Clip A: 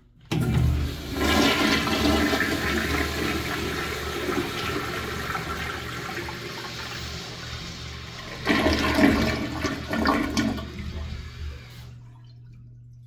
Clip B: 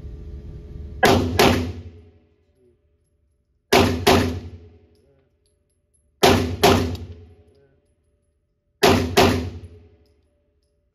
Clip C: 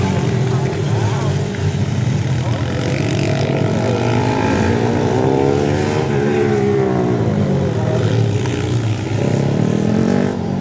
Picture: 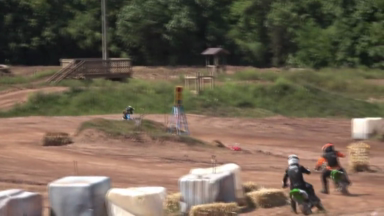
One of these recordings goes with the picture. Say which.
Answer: C